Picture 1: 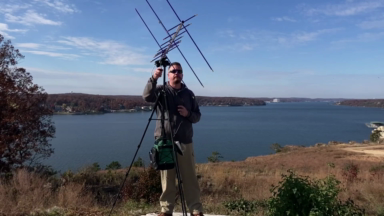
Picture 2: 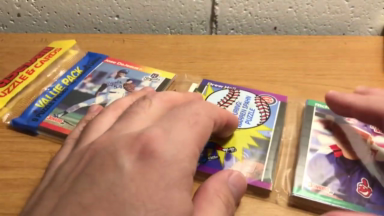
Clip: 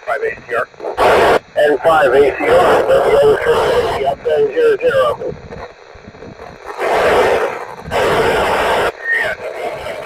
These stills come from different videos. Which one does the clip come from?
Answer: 1